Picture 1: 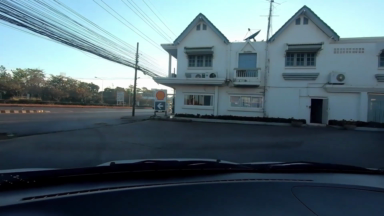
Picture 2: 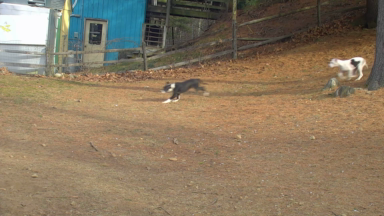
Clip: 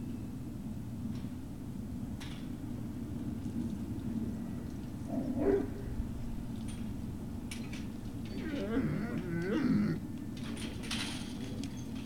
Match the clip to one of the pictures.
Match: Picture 2